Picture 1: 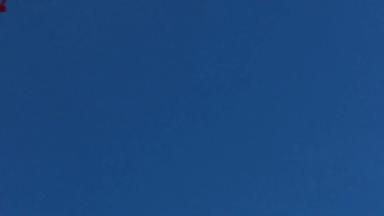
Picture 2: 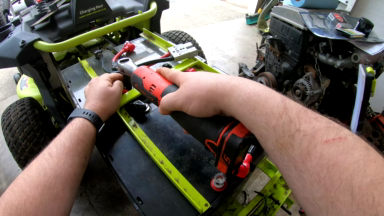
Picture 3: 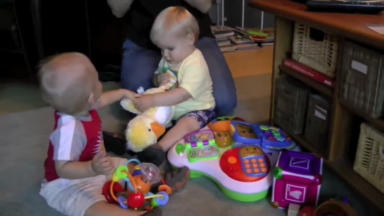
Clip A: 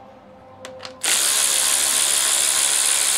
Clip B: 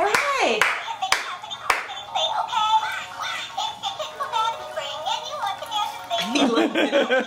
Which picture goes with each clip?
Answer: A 2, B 3